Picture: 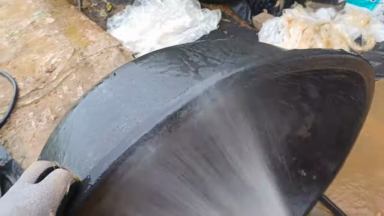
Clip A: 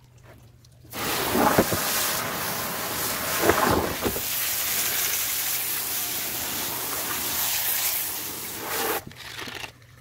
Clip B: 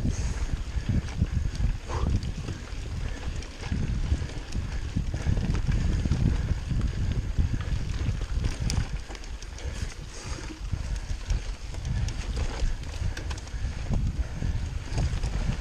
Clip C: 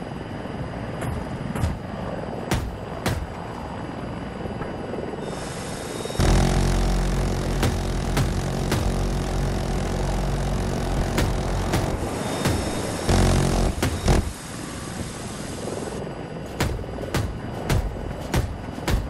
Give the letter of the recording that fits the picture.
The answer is A